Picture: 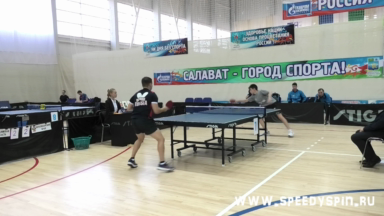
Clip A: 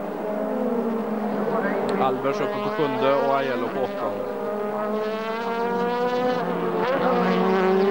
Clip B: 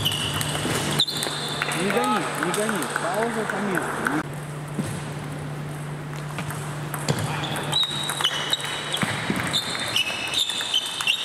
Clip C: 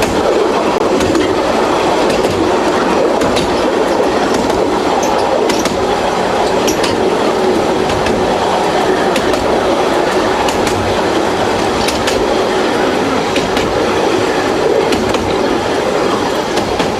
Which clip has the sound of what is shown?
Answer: B